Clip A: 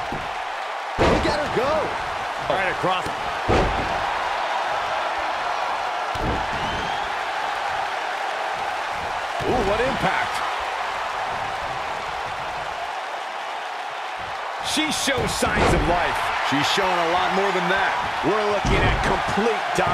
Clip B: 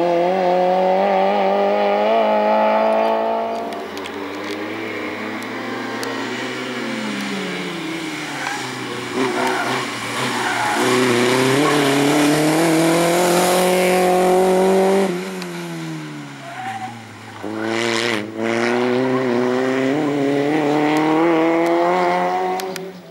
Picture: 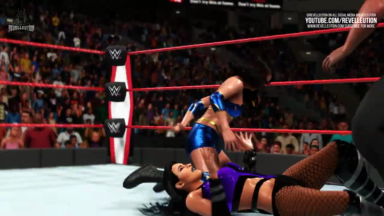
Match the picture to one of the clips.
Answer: A